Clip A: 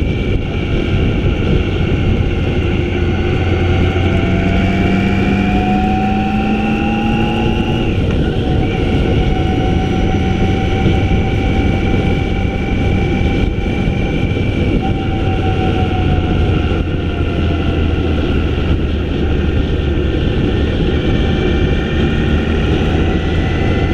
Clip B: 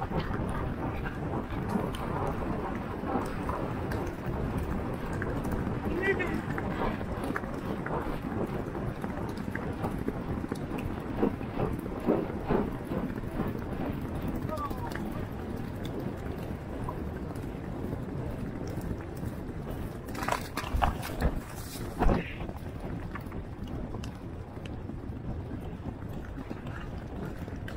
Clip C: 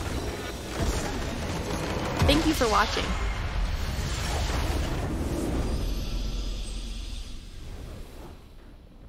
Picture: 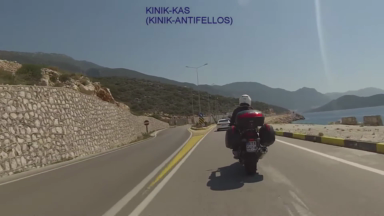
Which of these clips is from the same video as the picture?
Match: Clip A